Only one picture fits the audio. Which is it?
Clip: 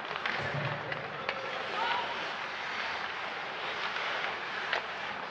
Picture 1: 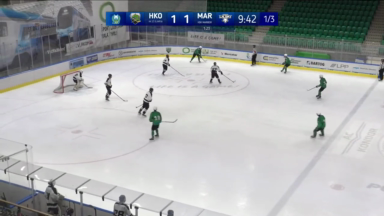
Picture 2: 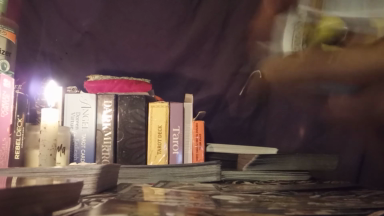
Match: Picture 1